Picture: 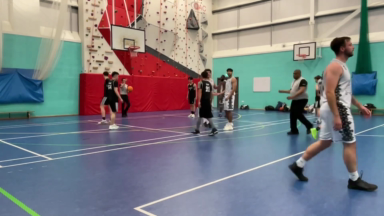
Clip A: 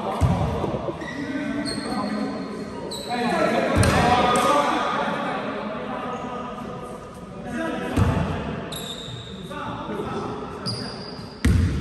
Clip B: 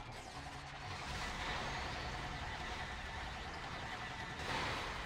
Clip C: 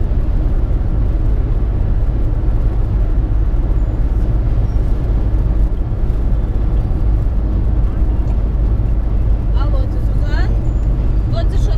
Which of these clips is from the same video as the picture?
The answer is A